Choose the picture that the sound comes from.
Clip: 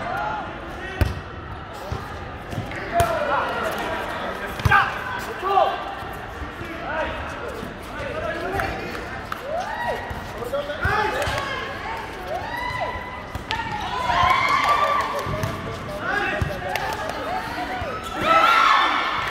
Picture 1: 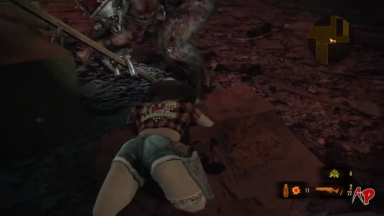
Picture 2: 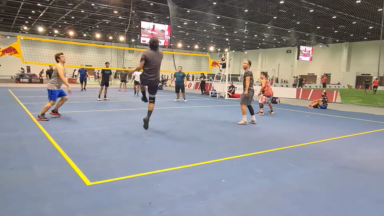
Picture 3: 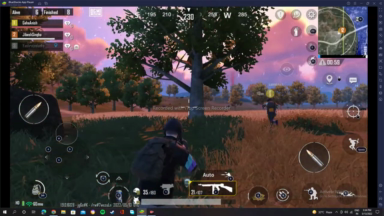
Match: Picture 2